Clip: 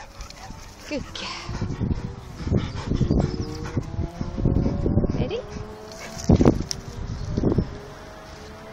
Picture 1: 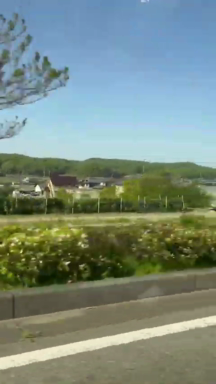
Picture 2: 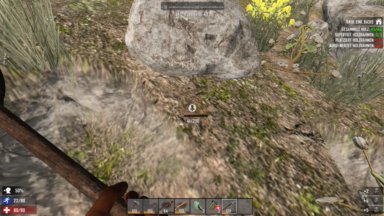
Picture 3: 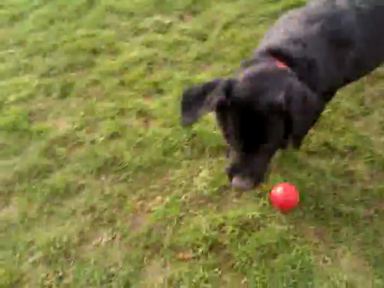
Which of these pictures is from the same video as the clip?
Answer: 3